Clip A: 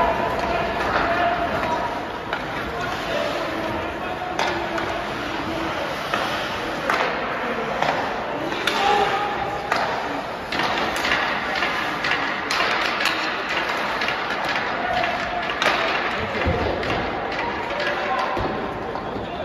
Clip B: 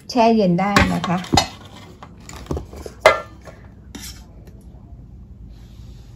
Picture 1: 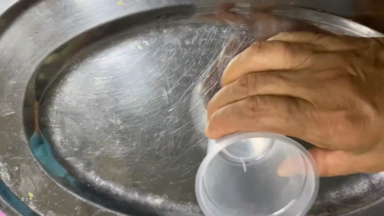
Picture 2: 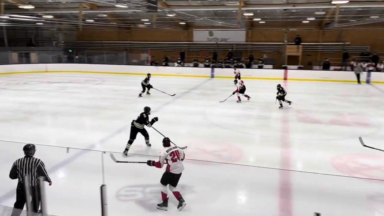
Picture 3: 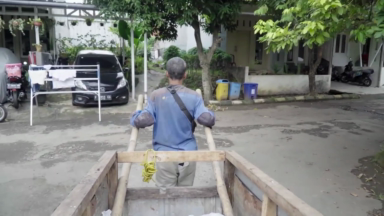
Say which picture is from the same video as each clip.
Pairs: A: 2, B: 1